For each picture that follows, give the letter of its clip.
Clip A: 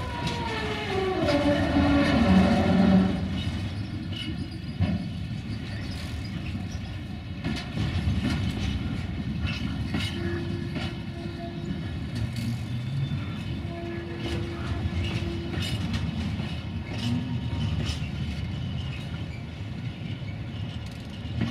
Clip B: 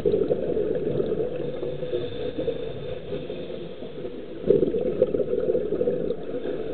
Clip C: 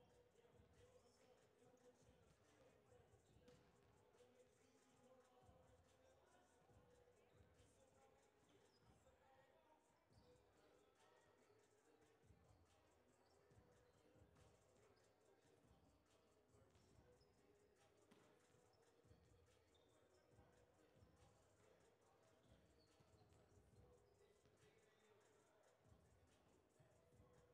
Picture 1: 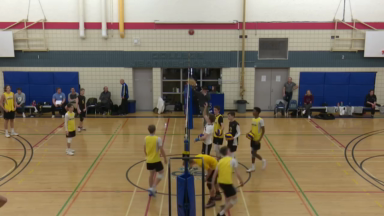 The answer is C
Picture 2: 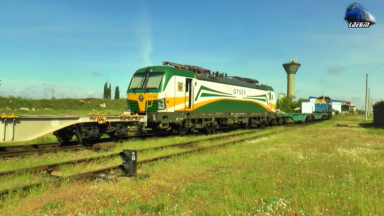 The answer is A